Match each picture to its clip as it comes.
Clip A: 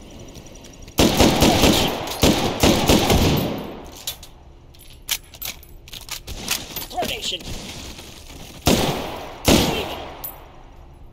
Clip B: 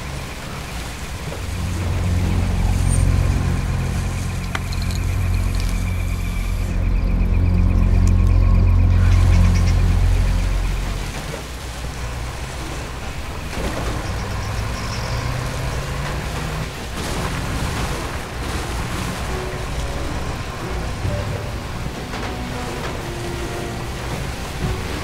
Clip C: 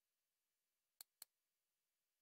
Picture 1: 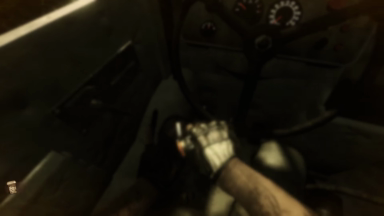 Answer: B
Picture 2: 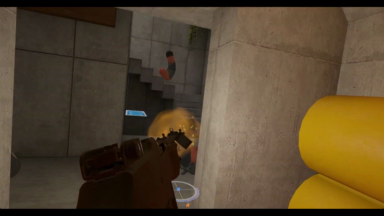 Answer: A